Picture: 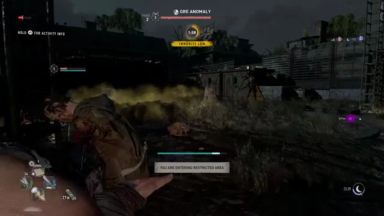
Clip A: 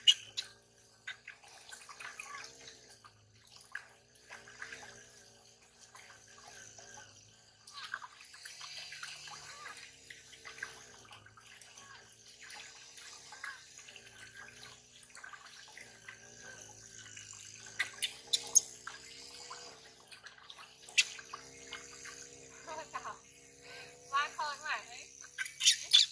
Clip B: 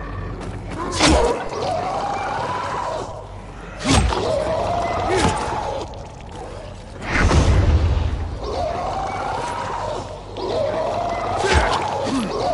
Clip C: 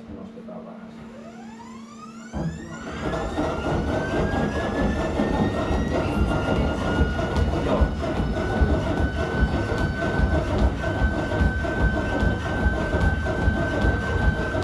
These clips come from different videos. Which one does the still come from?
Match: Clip B